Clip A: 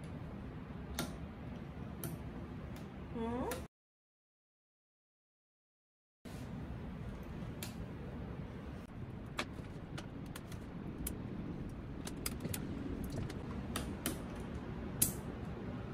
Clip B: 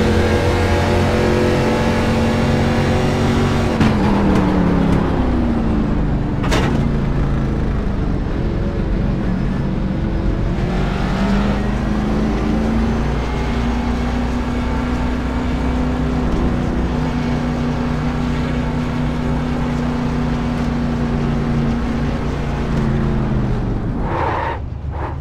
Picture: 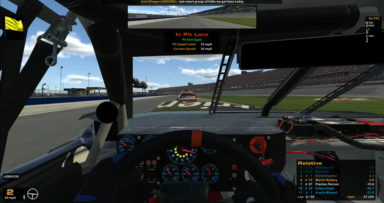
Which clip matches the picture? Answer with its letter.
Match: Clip B